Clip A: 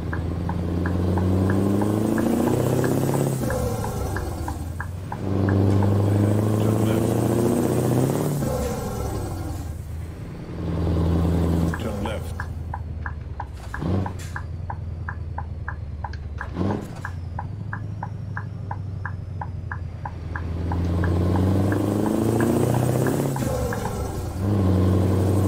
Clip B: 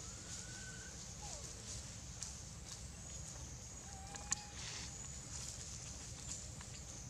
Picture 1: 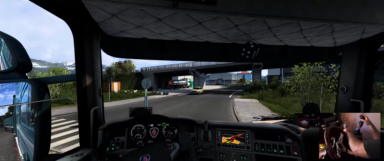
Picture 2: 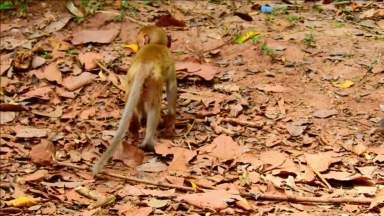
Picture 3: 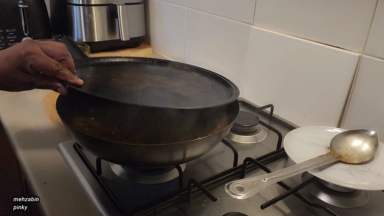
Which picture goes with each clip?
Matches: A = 1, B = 2